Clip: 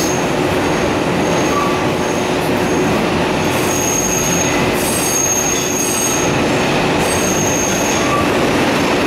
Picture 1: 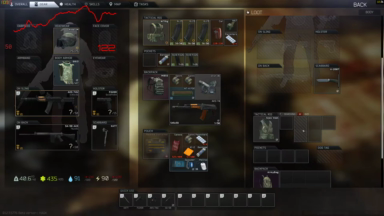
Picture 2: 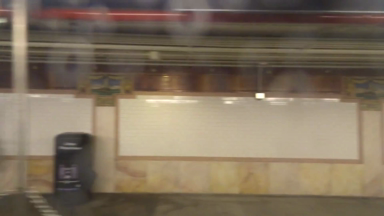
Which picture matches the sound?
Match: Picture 2